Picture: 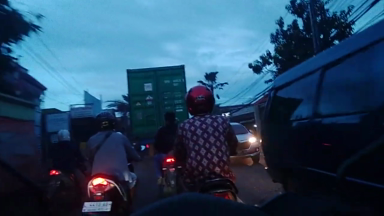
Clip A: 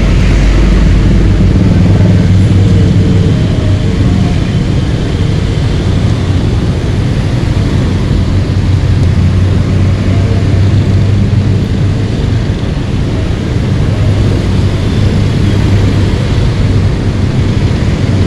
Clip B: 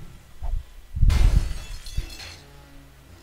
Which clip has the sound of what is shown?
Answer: A